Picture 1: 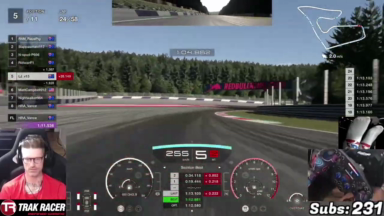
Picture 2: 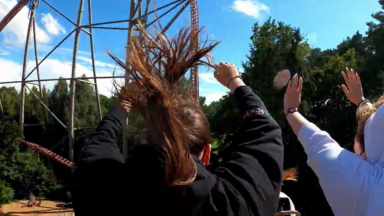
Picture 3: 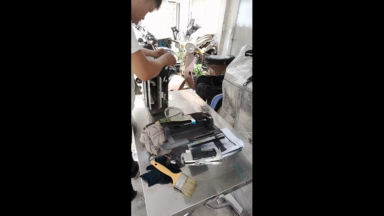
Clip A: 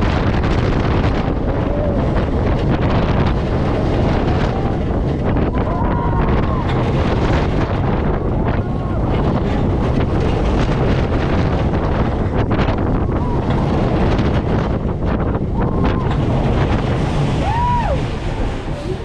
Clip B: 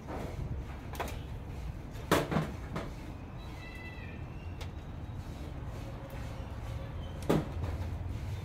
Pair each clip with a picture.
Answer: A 2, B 3